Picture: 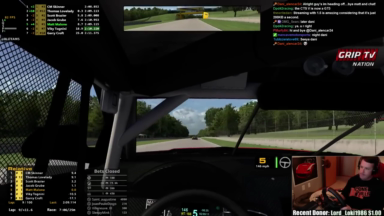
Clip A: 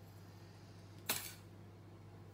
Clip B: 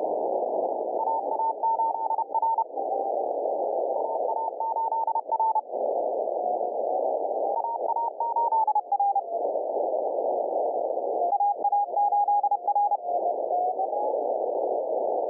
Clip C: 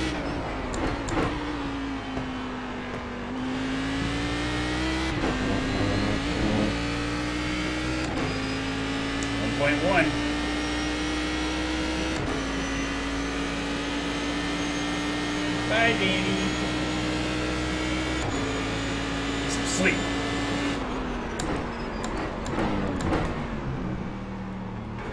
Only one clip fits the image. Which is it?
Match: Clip C